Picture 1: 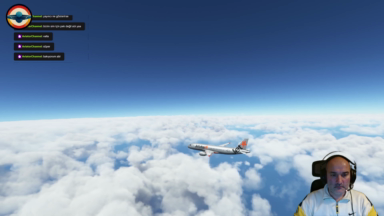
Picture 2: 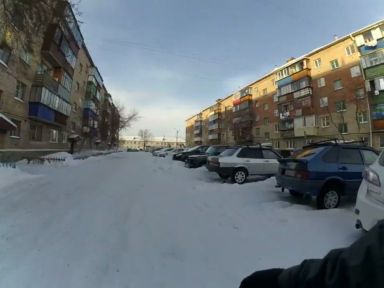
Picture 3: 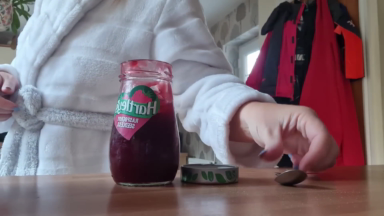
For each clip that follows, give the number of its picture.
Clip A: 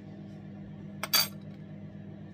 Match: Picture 3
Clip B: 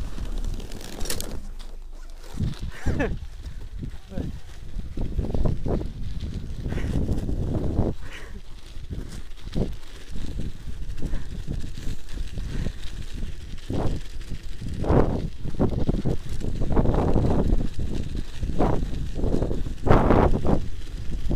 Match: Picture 2